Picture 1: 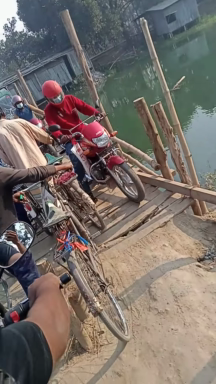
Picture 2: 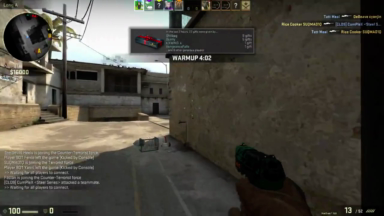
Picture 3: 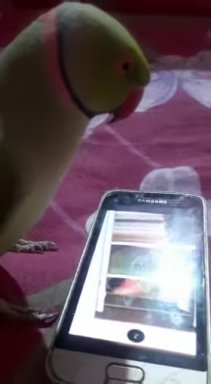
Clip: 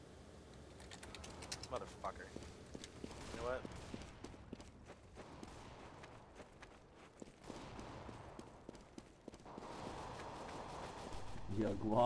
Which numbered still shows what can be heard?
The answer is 2